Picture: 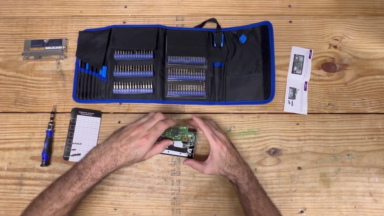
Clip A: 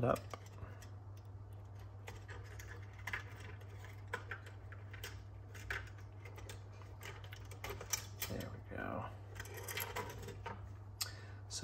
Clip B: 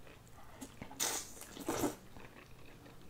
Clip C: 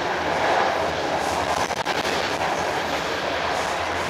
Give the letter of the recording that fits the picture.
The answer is A